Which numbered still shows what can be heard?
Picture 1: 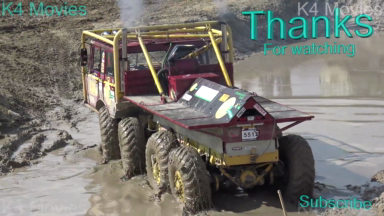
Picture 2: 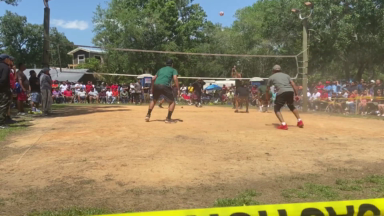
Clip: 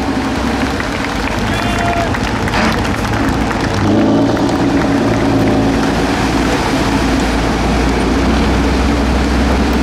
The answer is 1